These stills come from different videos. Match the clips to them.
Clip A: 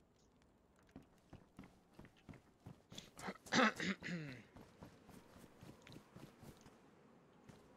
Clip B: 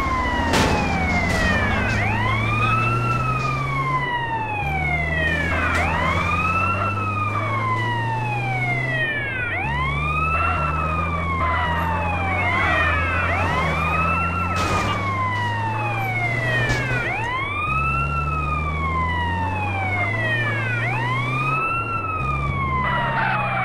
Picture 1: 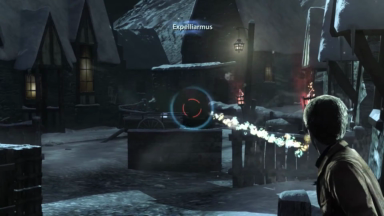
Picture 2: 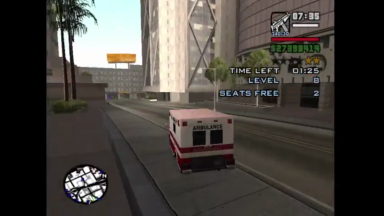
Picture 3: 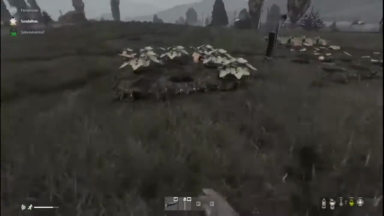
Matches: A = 3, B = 2